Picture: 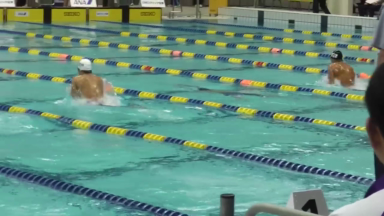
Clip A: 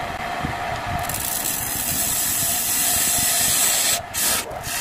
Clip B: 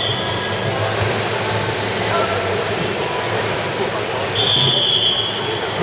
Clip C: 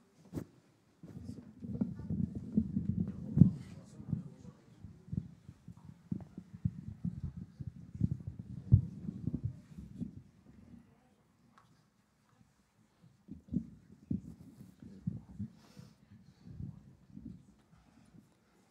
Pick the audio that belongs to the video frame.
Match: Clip B